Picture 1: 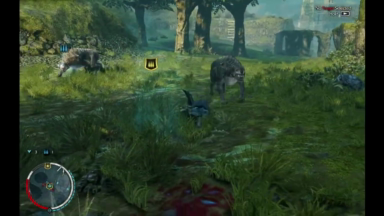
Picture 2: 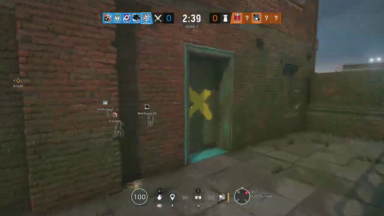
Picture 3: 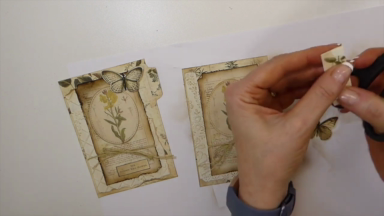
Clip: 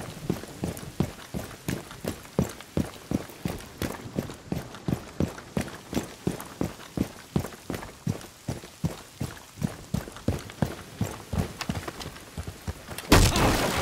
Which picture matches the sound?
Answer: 2